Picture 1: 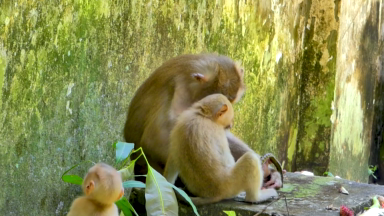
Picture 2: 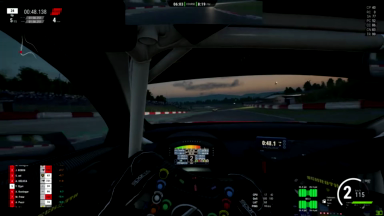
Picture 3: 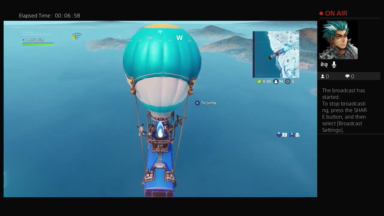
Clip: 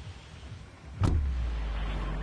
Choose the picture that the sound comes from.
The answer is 3